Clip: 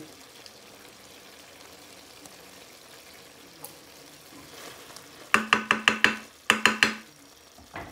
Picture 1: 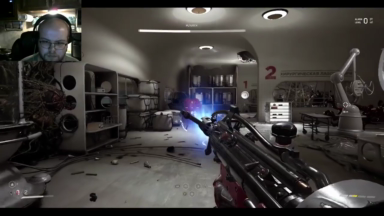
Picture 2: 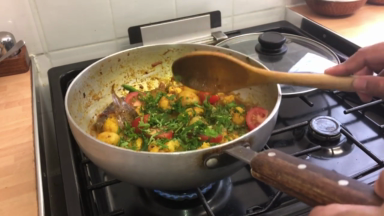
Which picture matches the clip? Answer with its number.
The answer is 2